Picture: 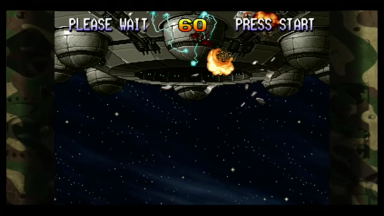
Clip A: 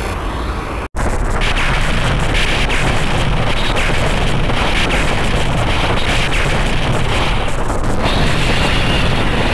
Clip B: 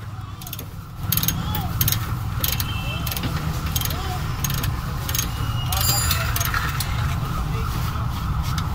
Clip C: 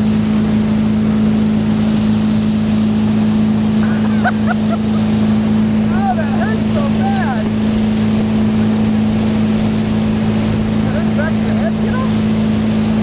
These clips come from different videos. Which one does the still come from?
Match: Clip A